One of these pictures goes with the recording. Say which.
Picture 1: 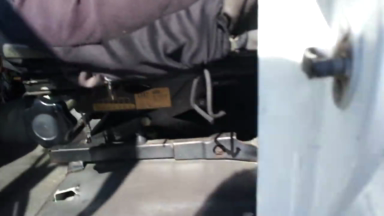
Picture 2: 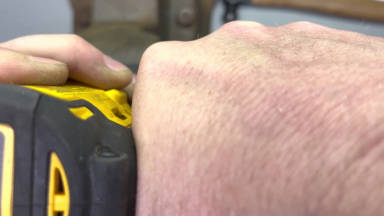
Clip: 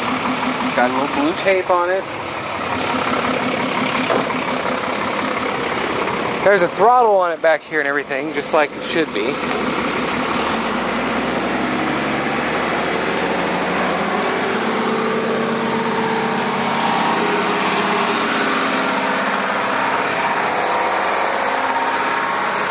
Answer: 1